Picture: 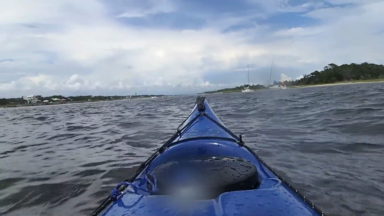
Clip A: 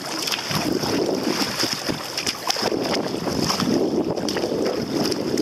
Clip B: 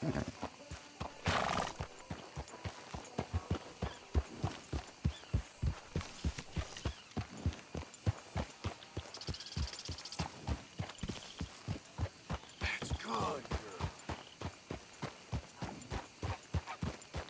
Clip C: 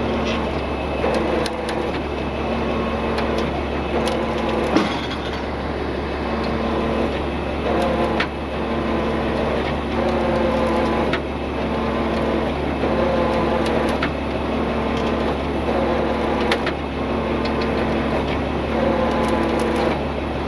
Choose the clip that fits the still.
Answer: A